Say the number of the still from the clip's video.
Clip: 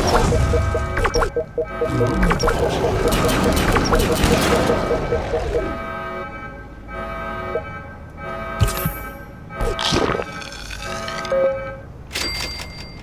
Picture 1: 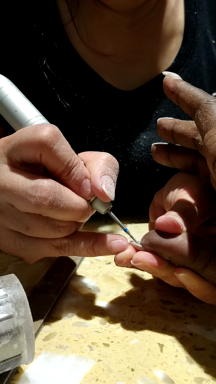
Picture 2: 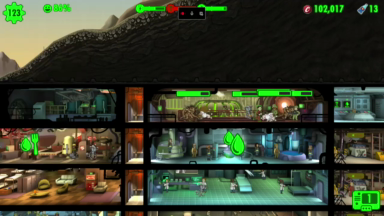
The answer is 2